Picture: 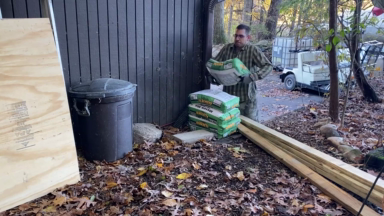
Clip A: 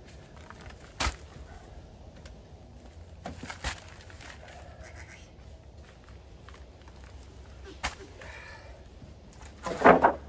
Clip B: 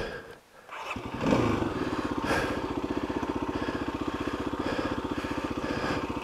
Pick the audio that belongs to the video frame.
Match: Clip A